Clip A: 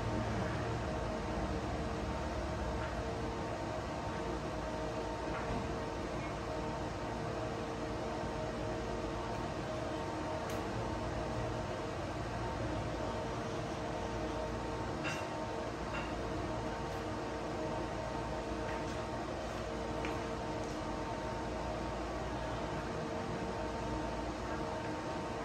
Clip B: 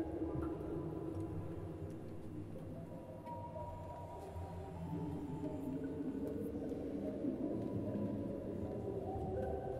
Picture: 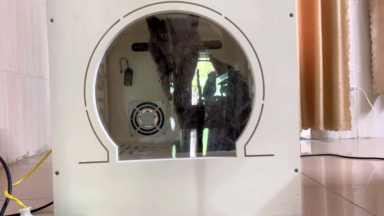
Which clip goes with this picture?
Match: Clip A